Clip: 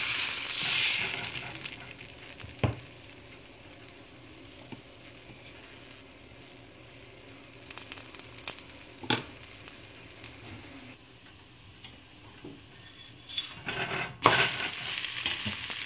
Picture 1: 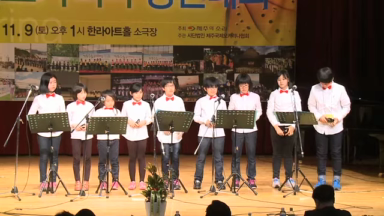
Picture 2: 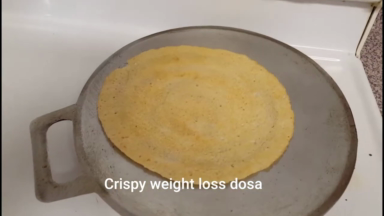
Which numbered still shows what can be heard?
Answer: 2